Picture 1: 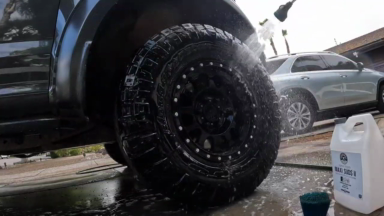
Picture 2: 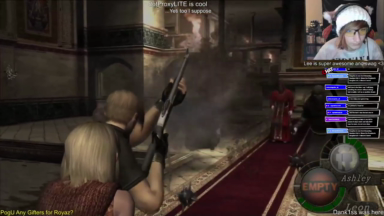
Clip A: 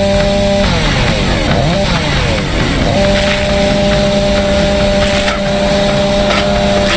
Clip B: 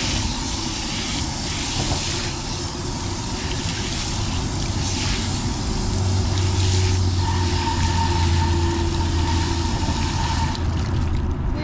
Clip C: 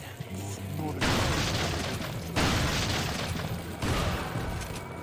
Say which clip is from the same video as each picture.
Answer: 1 B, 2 C